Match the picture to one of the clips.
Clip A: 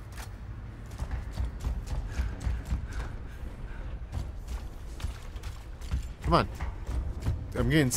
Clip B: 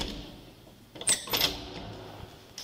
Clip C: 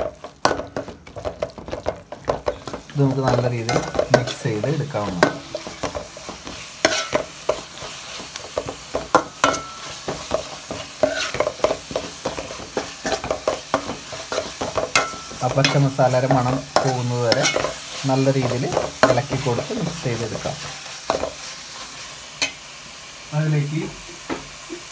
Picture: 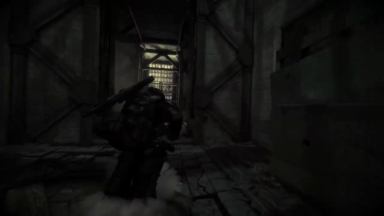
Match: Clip A